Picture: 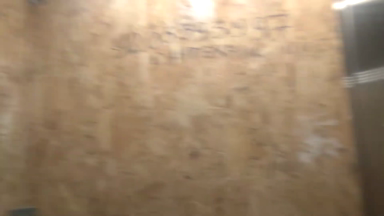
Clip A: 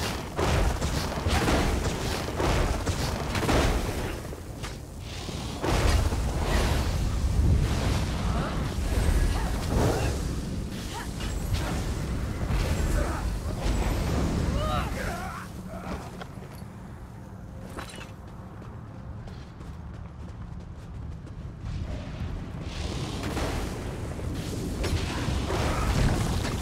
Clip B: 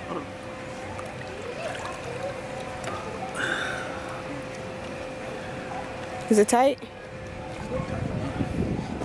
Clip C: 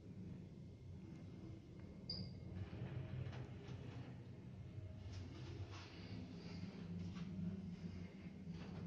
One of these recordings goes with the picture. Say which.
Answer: C